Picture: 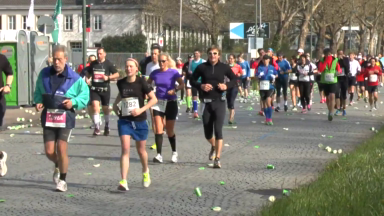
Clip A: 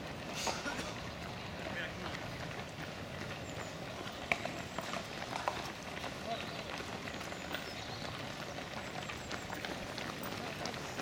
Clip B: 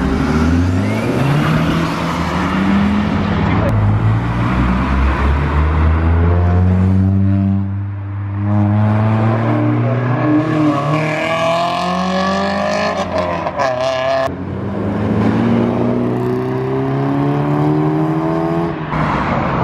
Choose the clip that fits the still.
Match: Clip A